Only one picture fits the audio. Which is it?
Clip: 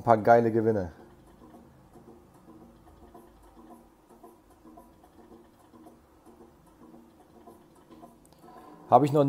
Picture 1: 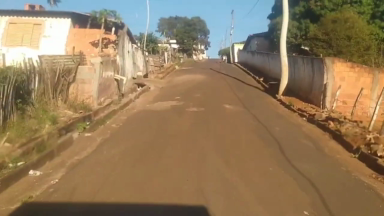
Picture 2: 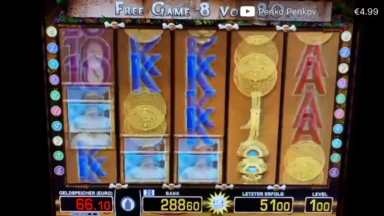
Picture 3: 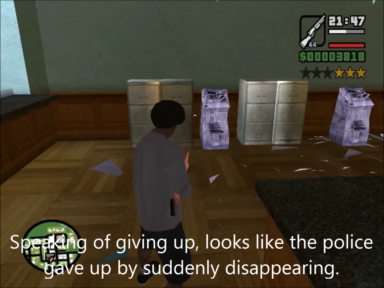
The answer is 2